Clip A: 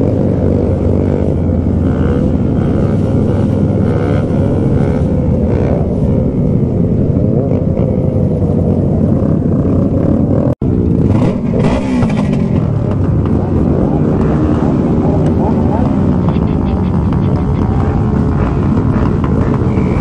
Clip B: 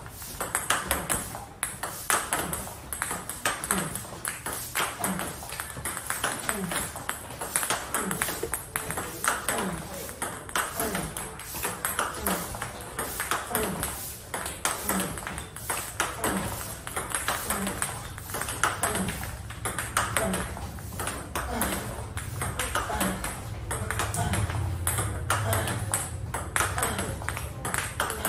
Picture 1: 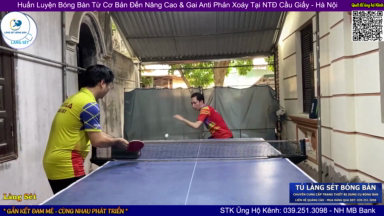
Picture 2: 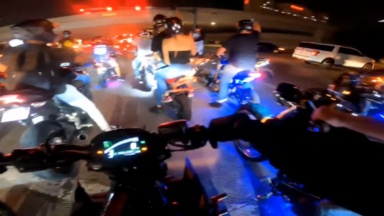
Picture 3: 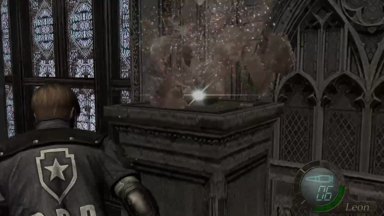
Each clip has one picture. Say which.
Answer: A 2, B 1